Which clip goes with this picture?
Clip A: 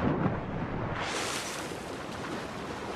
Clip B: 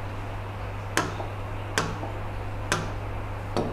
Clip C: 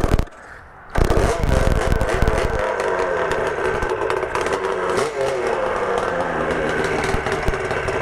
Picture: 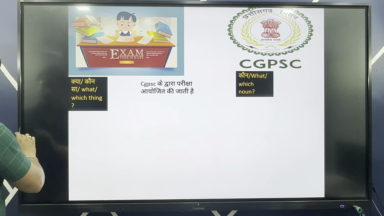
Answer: B